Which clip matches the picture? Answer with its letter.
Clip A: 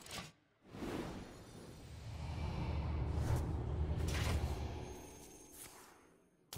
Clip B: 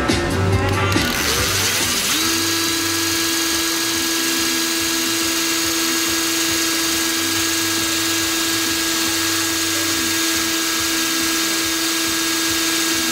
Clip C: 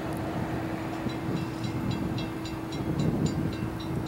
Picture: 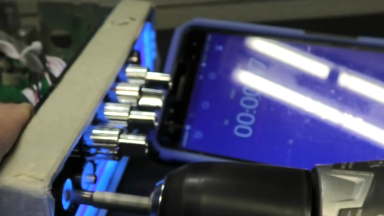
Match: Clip B